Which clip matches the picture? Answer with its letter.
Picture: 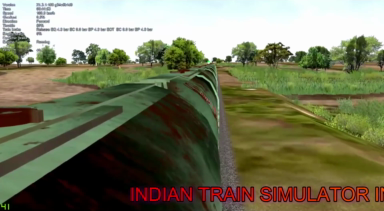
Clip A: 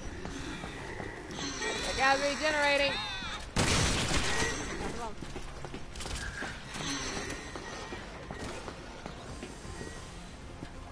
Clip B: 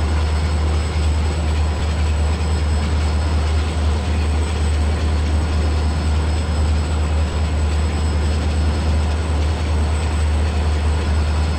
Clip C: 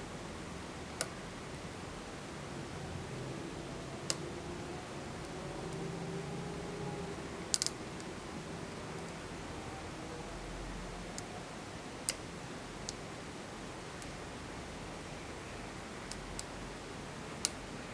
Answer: B